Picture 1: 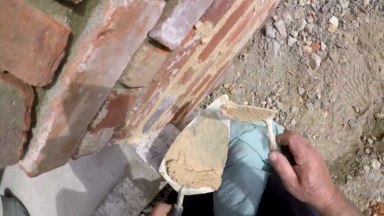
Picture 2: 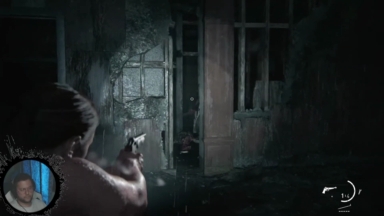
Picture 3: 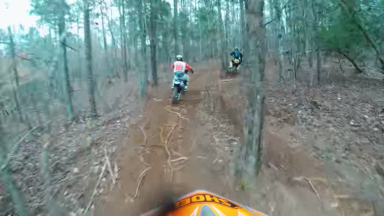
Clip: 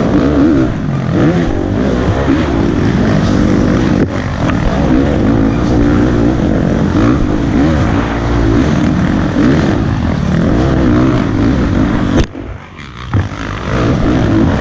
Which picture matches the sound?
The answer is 3